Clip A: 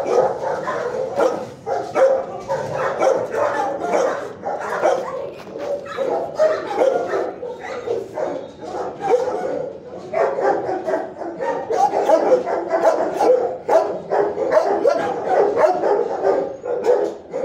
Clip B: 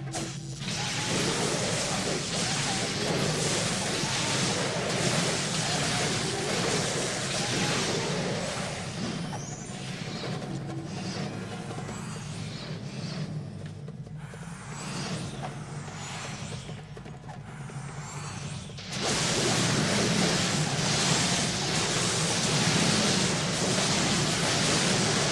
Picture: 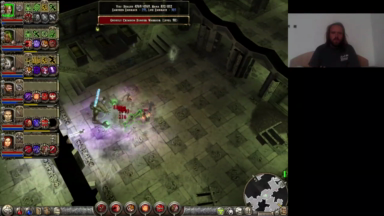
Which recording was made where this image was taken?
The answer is B